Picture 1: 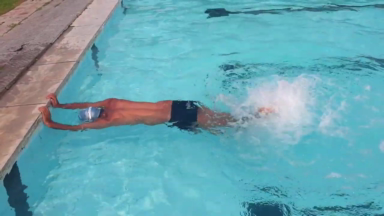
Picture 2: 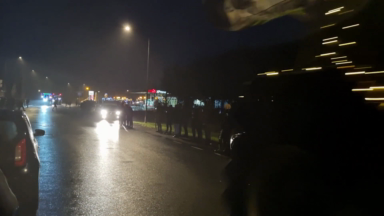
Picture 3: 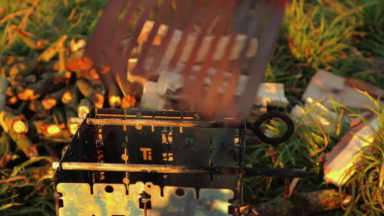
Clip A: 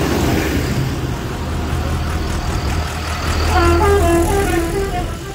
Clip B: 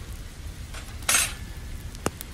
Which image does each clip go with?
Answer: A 2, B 3